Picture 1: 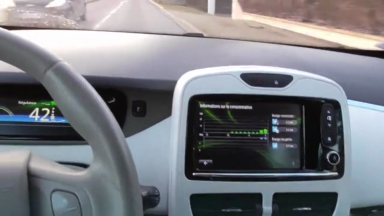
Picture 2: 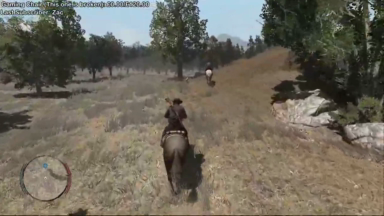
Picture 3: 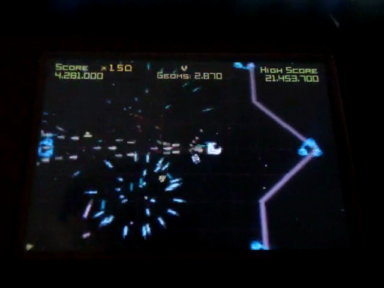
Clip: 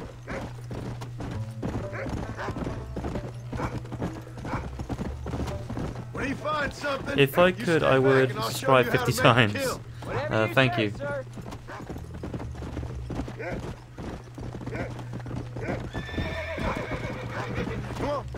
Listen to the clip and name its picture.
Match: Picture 2